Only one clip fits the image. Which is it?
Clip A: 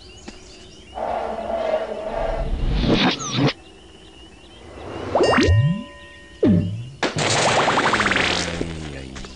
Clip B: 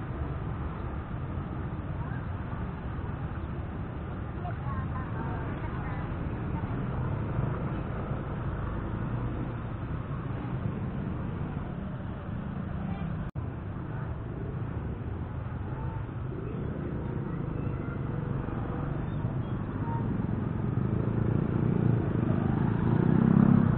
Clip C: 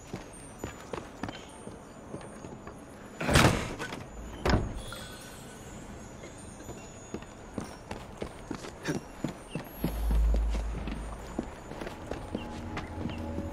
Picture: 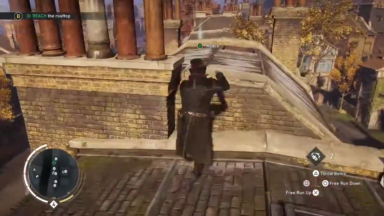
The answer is C